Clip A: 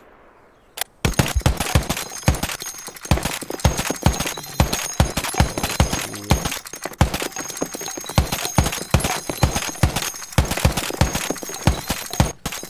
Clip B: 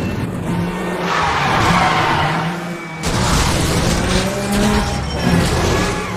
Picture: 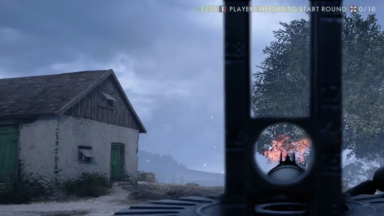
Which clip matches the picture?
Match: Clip A